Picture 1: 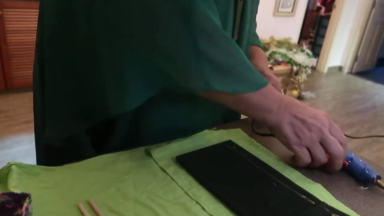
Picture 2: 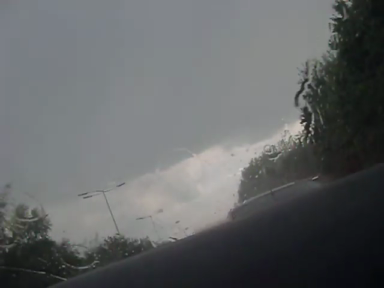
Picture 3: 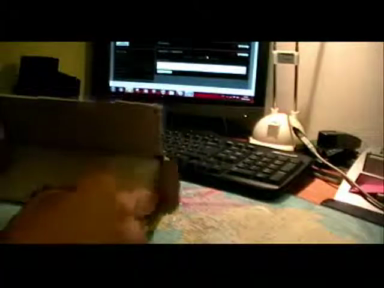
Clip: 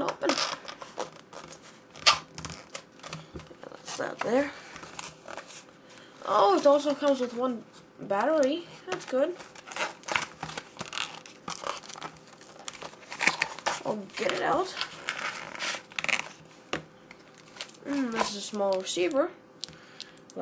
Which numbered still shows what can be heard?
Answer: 3